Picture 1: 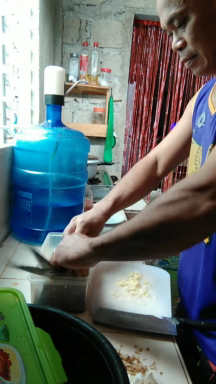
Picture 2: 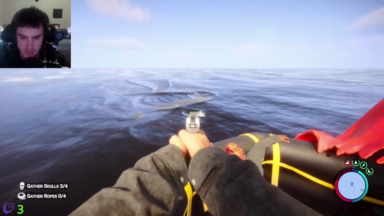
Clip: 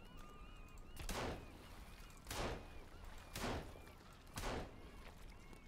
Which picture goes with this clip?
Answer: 2